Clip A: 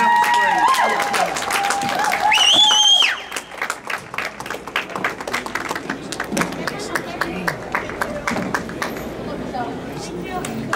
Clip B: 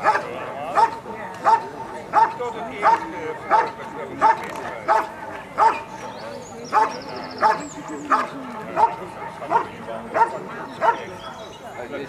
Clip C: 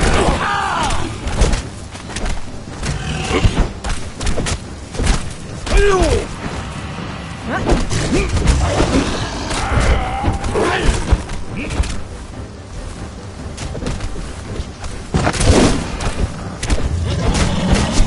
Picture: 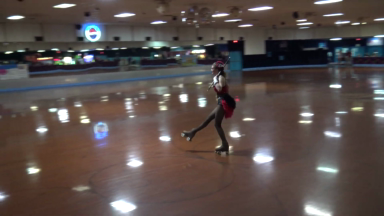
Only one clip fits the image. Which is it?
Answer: A